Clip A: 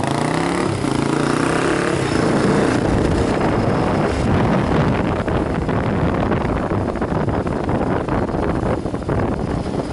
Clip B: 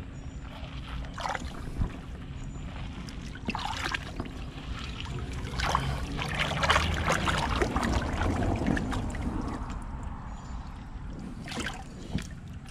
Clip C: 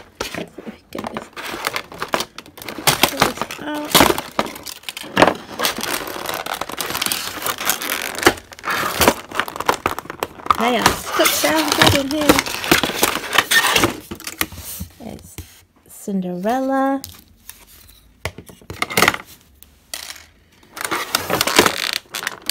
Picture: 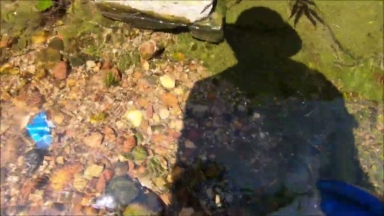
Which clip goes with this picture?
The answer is B